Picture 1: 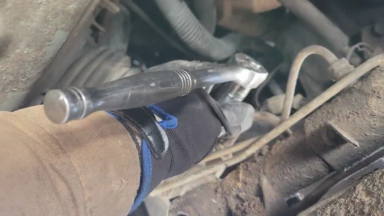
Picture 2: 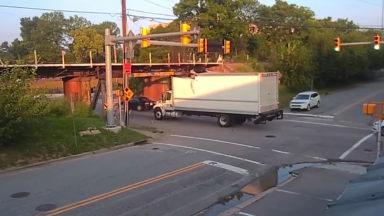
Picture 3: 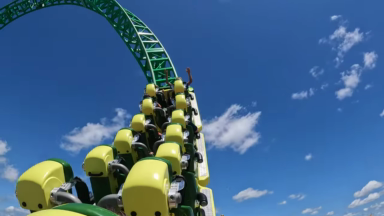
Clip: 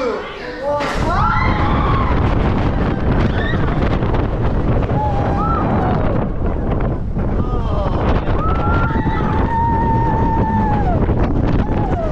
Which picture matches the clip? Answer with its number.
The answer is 3